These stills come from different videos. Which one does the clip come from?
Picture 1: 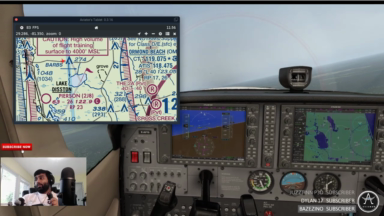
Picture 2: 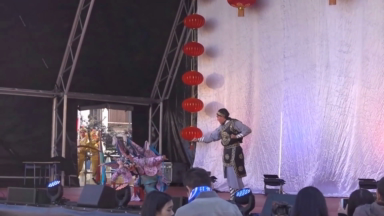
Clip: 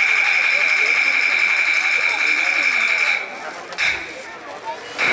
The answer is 2